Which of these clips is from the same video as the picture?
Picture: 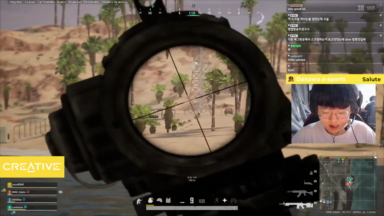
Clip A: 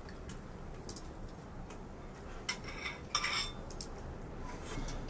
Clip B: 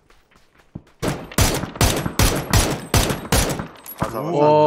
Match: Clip B